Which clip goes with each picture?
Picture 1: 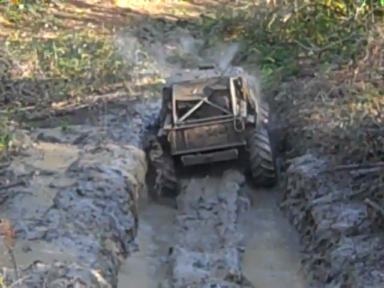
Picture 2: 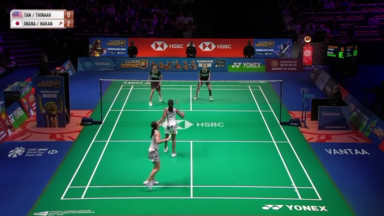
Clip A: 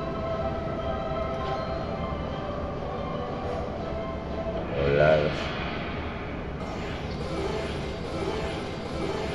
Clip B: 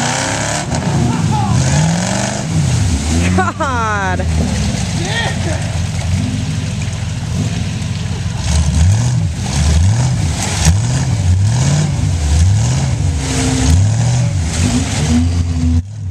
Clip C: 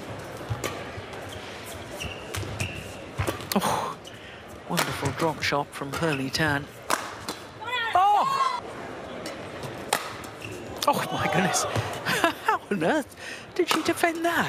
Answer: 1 B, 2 C